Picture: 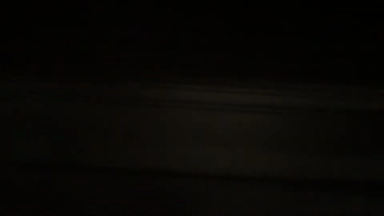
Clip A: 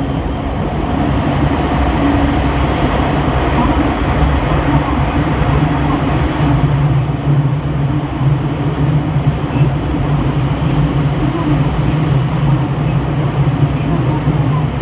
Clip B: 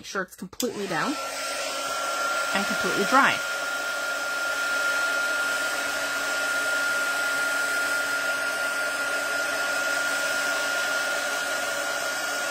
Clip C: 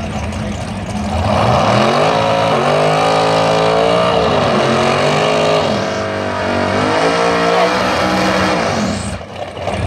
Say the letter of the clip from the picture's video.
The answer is A